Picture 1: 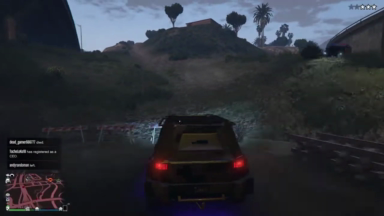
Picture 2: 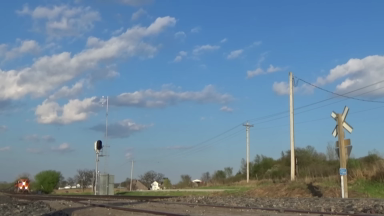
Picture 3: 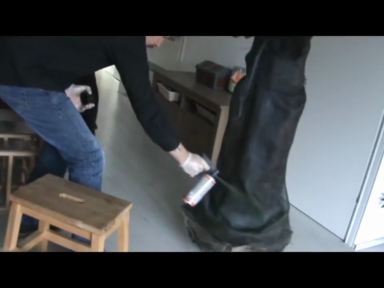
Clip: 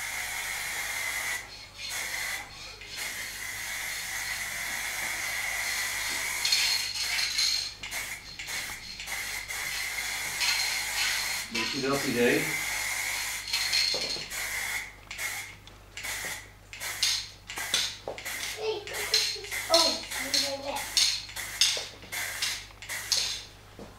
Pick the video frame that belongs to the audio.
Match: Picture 3